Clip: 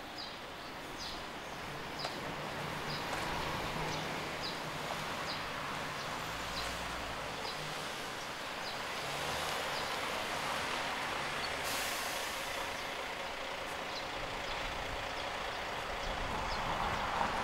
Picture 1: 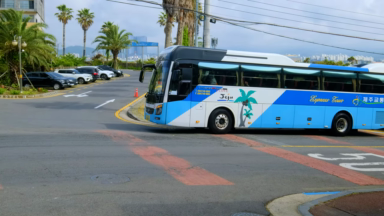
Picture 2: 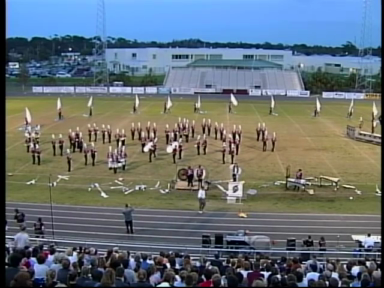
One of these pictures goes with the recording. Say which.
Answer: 1